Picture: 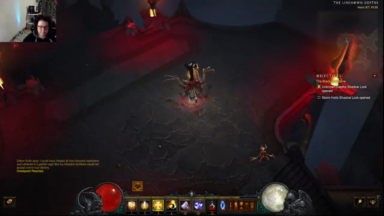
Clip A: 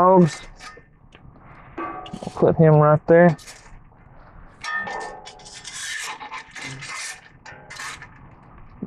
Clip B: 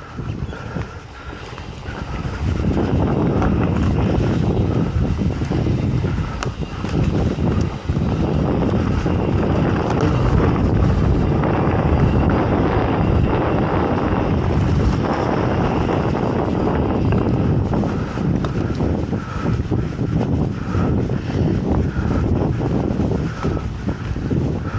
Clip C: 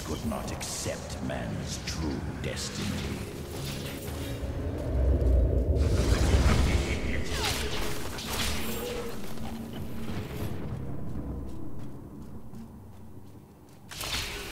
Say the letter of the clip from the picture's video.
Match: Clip C